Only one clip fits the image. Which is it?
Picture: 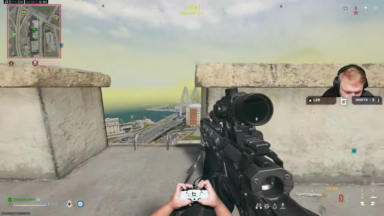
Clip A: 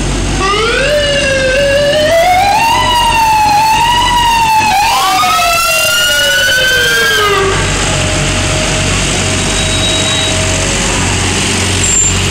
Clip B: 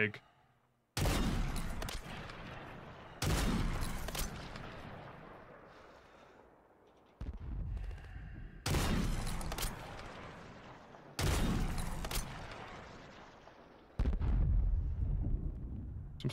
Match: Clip B